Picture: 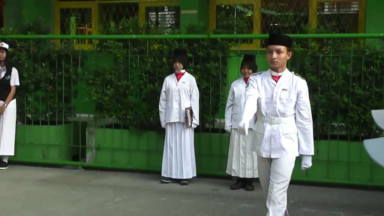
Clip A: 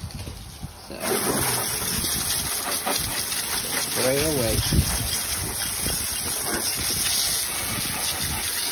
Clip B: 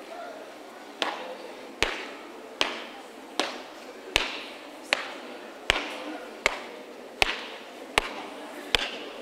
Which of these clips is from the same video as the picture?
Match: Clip B